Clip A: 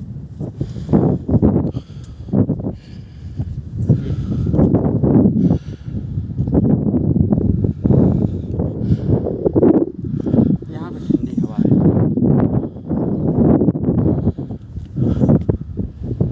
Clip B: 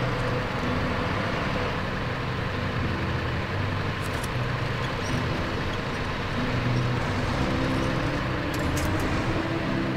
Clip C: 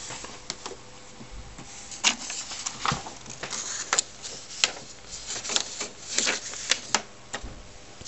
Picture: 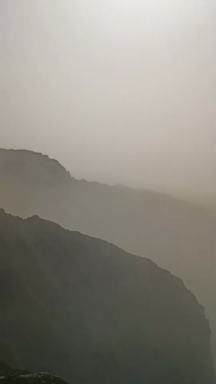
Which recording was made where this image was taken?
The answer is A